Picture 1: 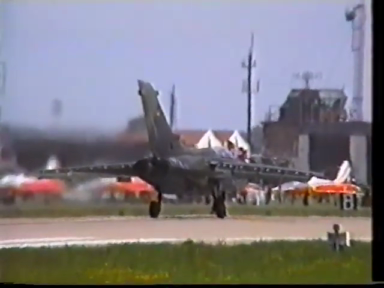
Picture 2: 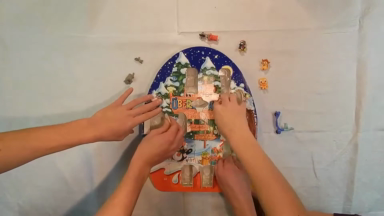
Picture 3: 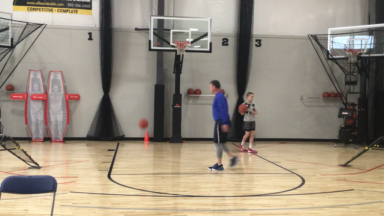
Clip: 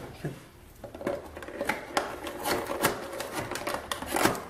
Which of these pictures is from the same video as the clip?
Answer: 2